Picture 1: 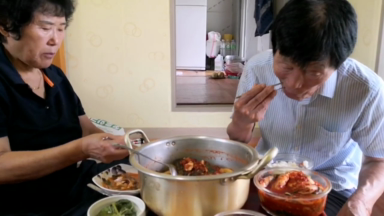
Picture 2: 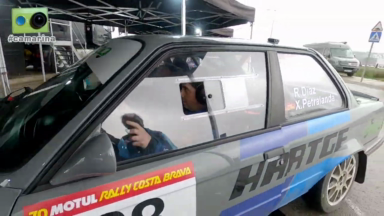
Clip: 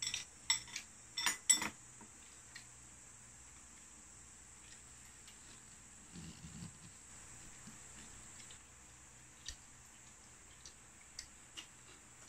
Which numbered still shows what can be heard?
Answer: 1